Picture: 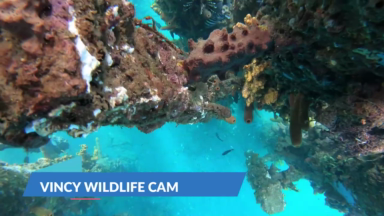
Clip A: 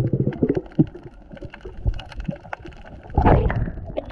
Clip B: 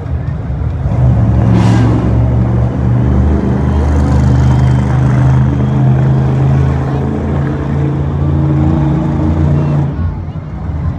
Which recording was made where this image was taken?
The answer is A